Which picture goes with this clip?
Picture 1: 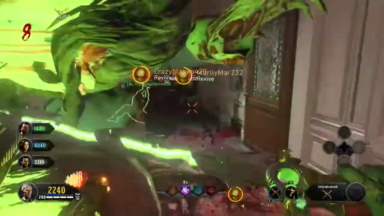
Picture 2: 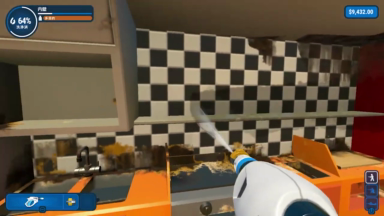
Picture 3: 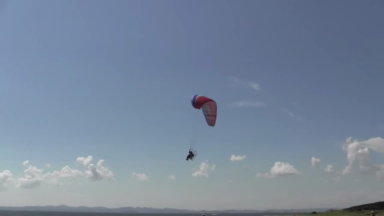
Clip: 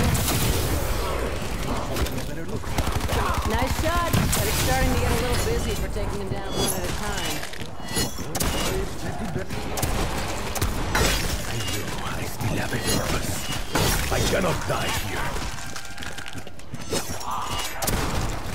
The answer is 1